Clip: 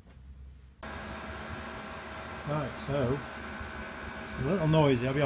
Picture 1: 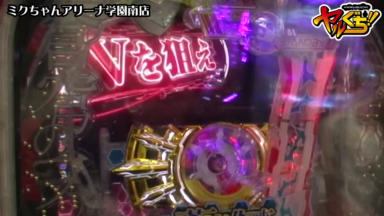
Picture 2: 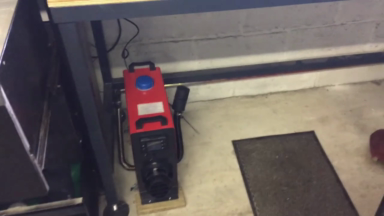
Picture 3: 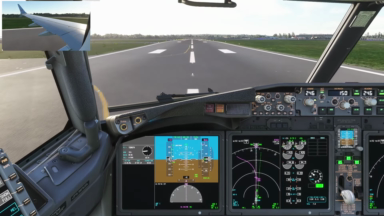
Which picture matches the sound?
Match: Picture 2